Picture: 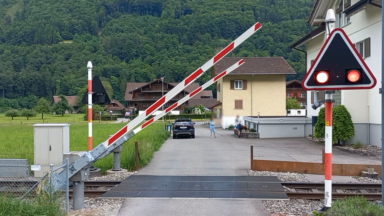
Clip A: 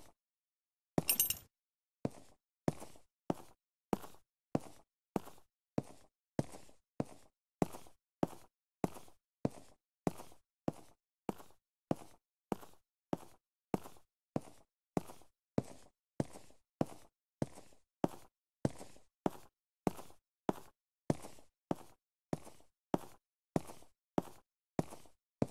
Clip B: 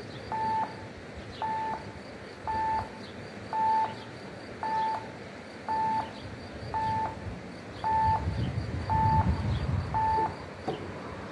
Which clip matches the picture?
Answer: B